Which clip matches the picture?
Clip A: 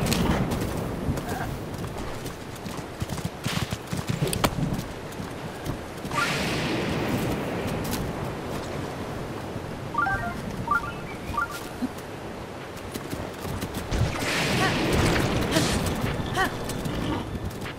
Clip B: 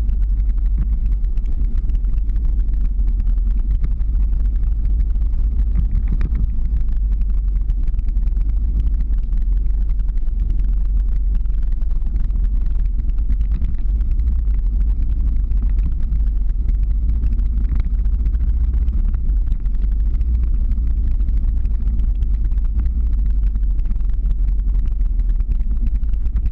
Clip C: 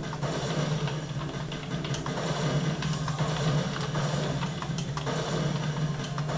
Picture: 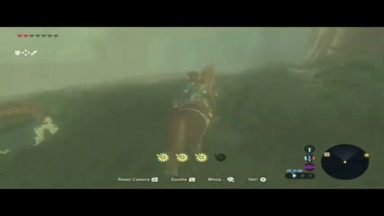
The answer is A